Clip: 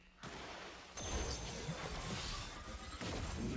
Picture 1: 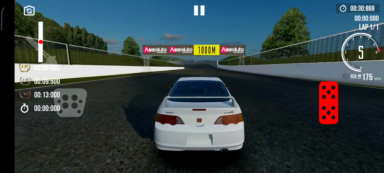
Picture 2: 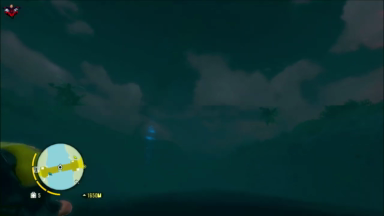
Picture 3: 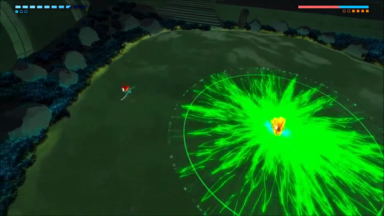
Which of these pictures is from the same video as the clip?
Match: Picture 3